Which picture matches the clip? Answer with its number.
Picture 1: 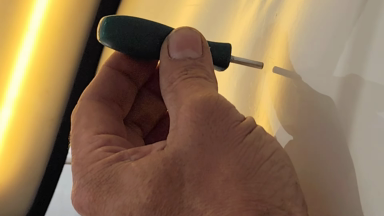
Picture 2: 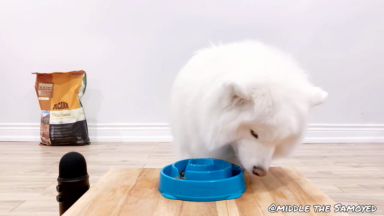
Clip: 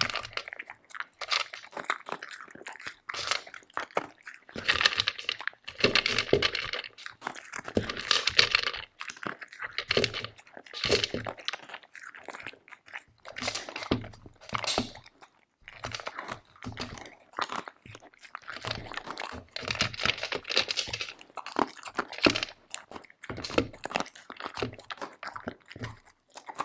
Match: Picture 2